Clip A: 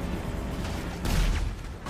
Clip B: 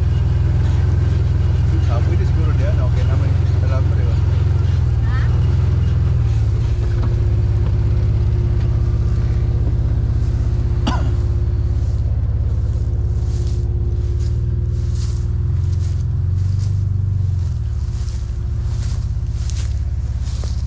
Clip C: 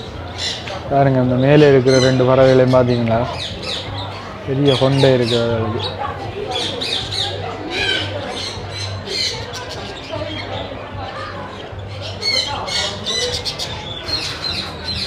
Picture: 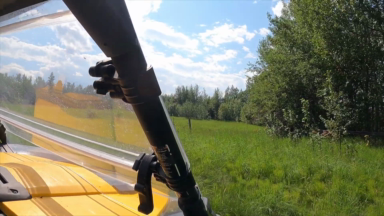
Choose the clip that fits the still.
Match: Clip B